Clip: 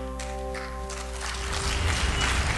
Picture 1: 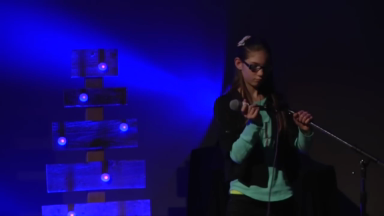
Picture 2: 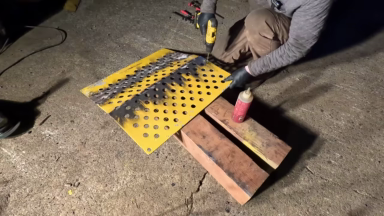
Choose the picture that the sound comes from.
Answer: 1